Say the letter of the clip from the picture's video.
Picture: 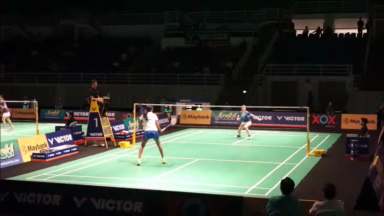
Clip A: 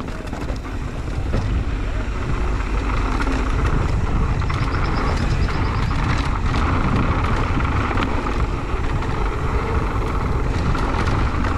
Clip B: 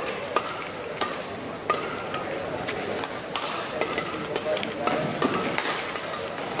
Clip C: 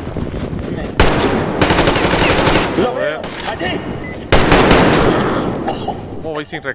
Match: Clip B